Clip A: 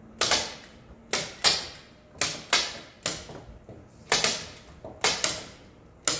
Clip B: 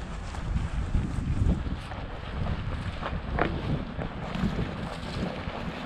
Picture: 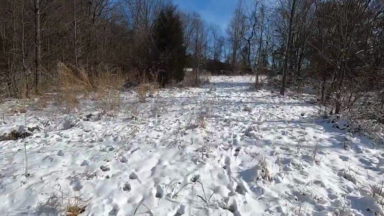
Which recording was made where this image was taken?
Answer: B